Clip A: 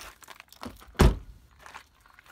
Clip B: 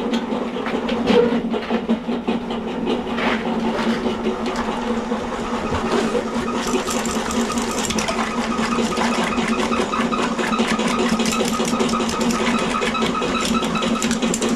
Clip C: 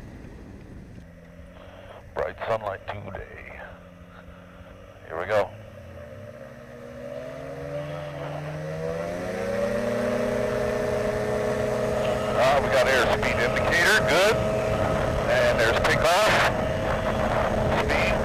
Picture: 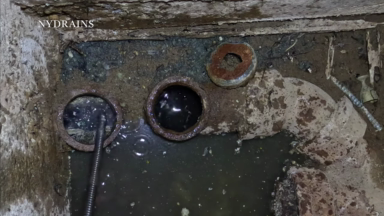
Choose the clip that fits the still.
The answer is B